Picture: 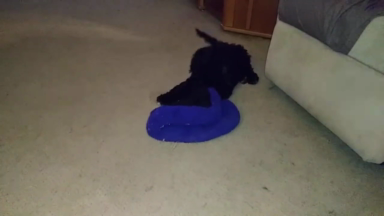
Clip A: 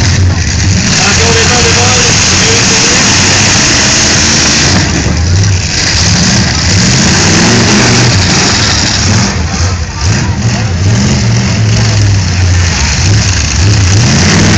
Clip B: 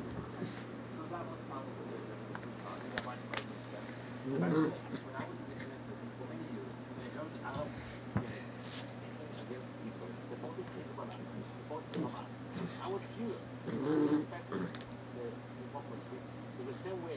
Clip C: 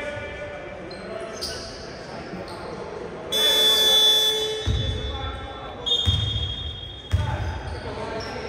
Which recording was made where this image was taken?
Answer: B